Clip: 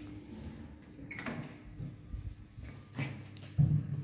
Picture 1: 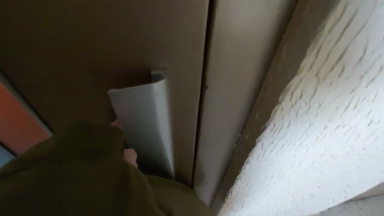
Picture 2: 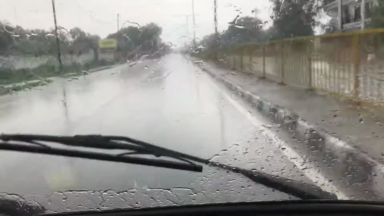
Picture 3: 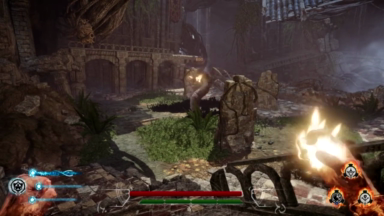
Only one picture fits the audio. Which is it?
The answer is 1